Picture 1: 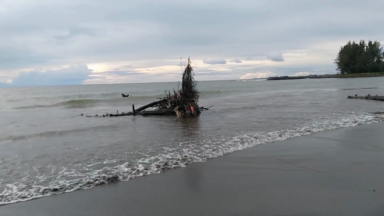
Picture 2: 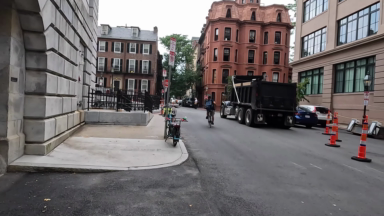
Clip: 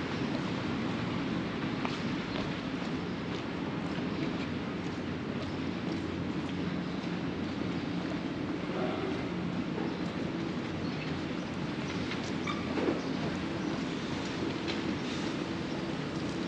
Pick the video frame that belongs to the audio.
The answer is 2